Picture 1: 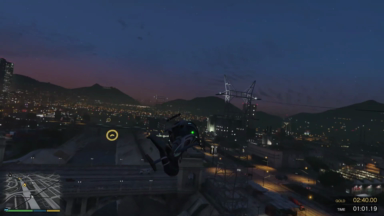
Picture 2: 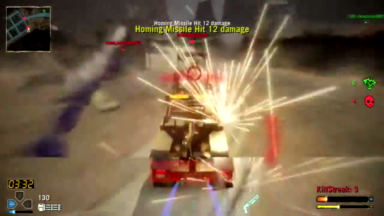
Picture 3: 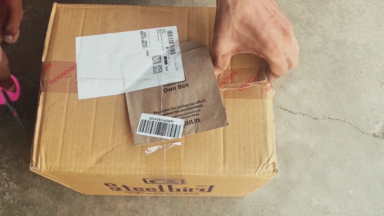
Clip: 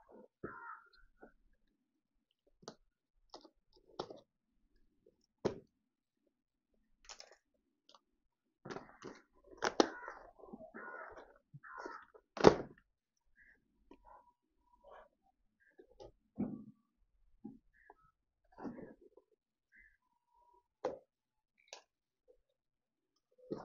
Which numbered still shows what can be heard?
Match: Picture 3